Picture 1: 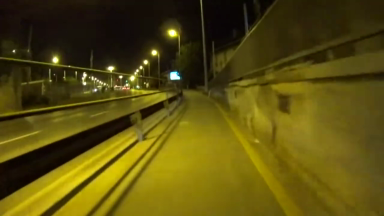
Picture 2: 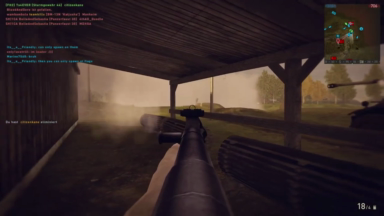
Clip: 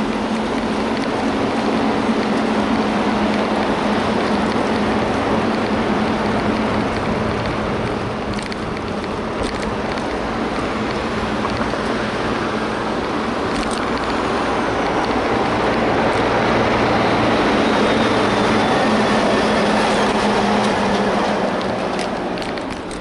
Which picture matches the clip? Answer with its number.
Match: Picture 1